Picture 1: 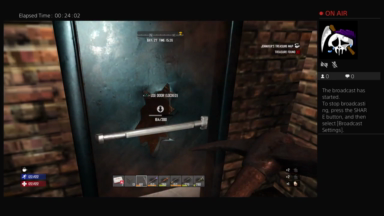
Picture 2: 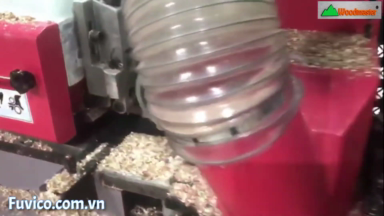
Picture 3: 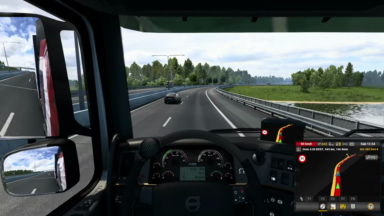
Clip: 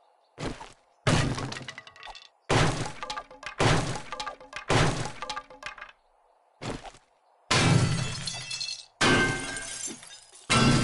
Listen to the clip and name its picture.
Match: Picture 1